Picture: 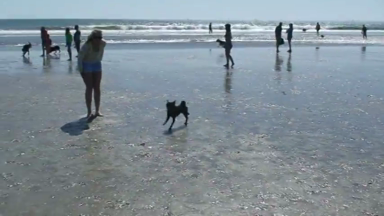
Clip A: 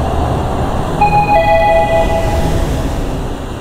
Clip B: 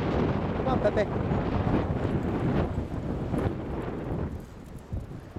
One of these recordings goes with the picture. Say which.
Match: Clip B